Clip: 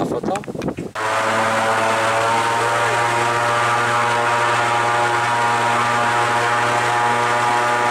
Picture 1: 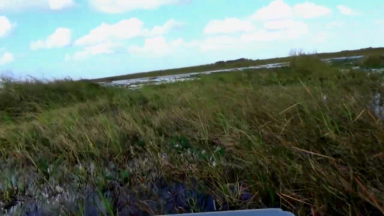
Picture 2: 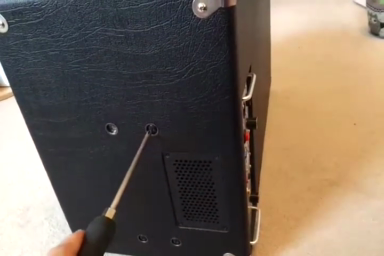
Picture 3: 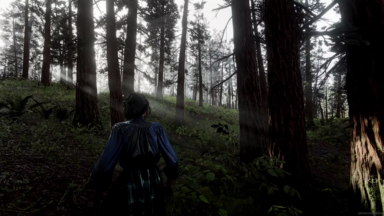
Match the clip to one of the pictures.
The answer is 1